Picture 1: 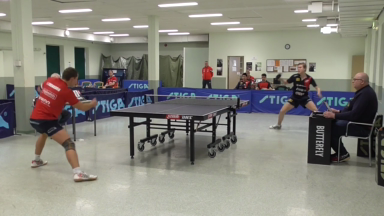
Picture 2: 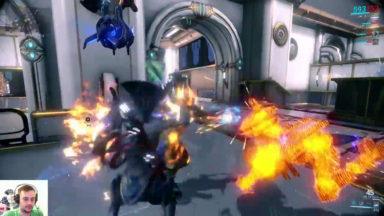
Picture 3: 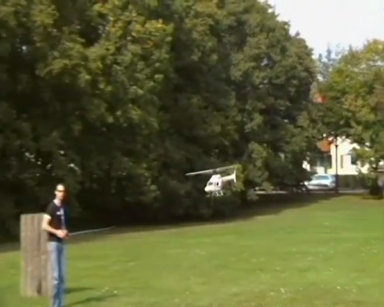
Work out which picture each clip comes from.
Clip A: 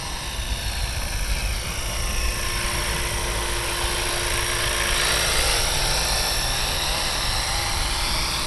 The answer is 3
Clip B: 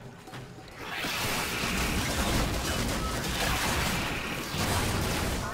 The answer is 2